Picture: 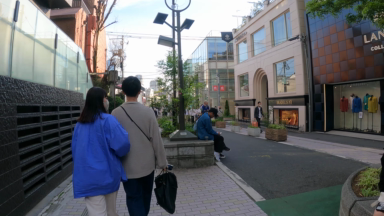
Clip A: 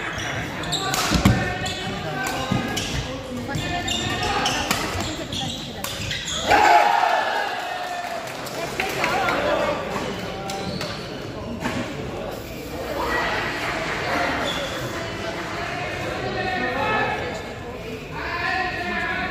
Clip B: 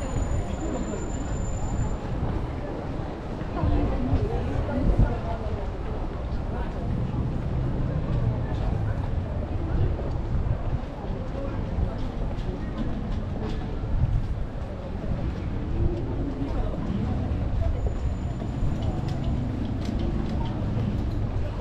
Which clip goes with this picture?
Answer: B